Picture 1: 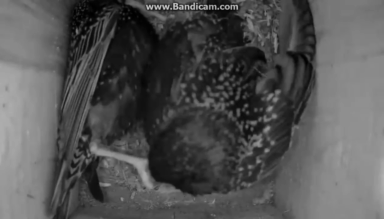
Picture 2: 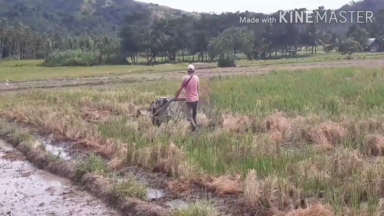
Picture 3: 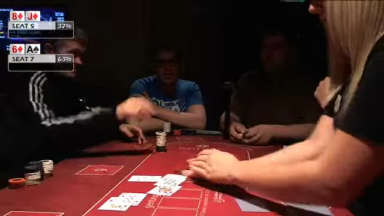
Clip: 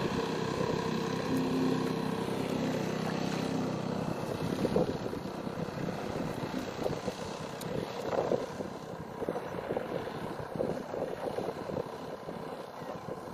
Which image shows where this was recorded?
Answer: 2